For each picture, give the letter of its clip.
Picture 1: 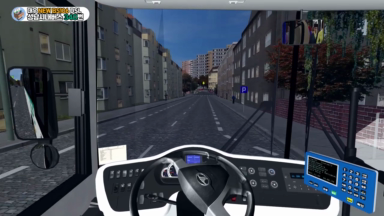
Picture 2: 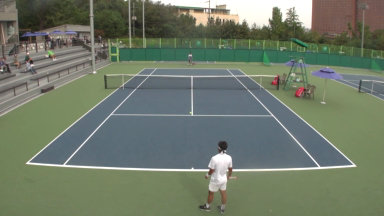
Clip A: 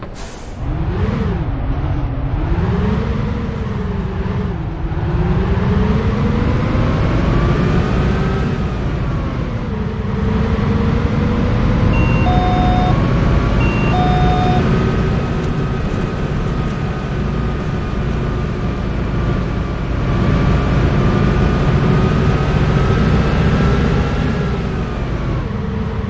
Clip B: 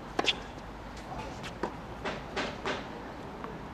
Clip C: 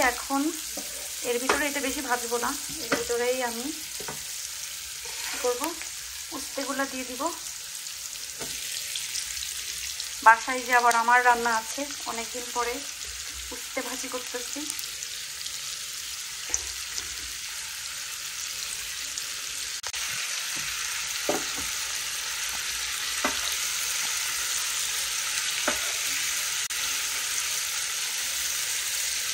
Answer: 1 A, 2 B